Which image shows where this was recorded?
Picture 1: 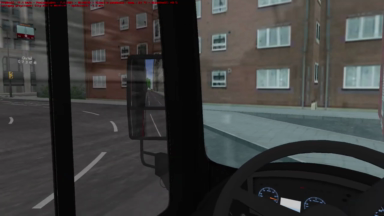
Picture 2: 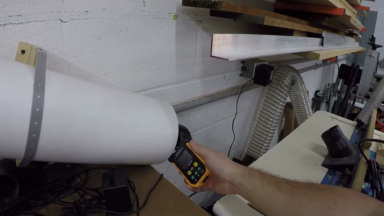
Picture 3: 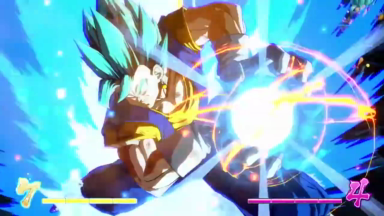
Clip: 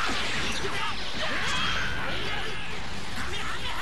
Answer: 3